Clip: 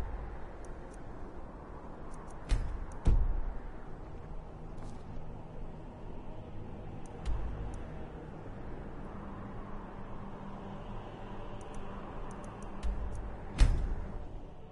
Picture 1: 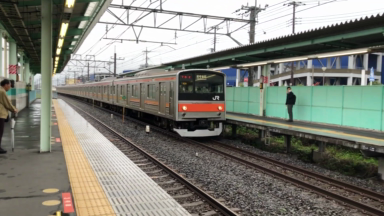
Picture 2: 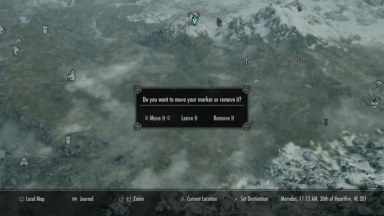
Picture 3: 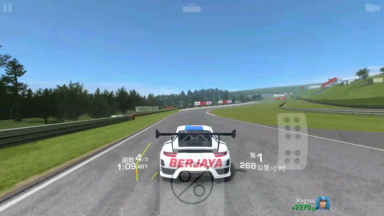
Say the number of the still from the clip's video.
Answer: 2